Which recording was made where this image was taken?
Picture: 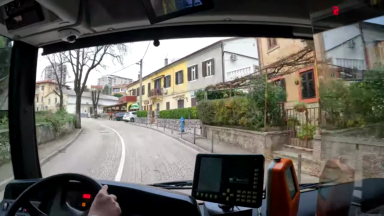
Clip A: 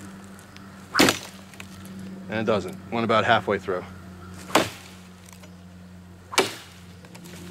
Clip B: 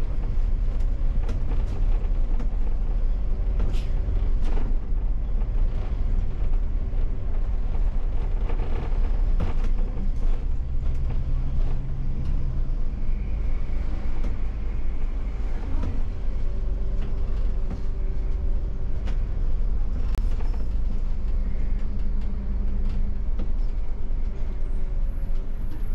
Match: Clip B